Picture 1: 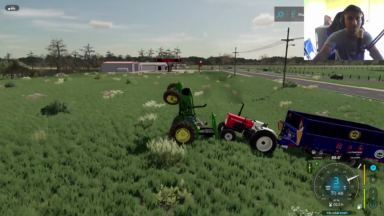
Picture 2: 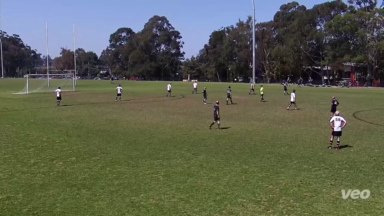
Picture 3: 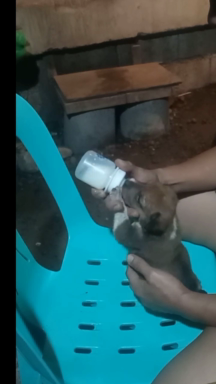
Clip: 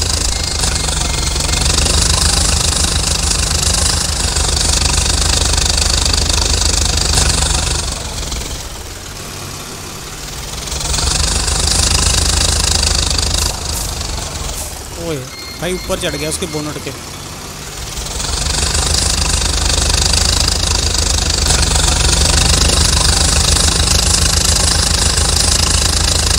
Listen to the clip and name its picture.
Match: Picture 1